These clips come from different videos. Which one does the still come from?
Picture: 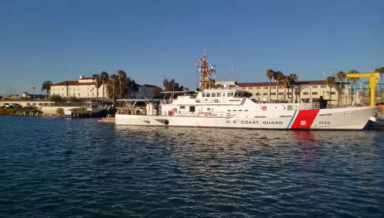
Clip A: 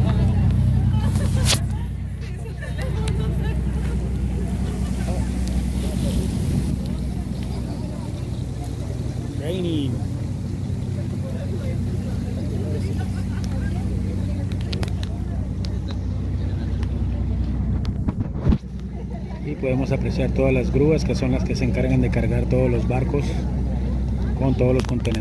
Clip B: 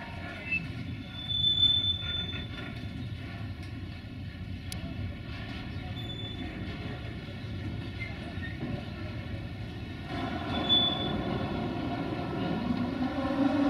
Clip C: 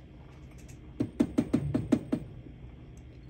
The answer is A